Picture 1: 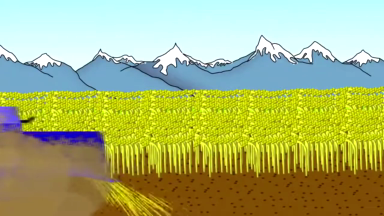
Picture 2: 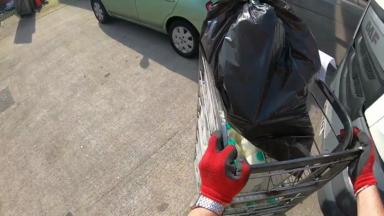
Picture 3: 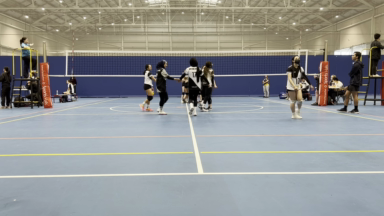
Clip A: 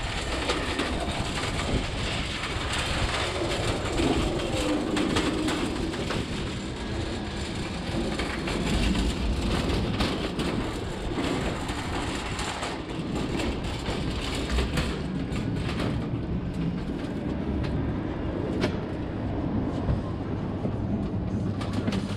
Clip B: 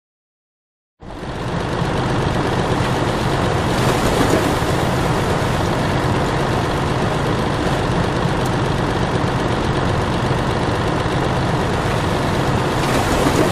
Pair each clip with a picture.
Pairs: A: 2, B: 1